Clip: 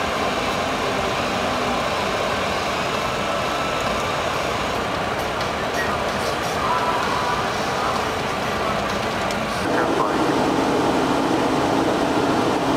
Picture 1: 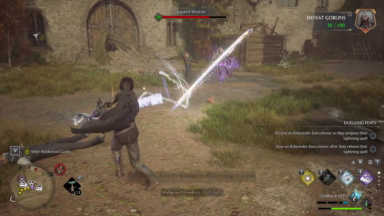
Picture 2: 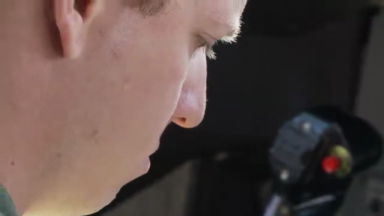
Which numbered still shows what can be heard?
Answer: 2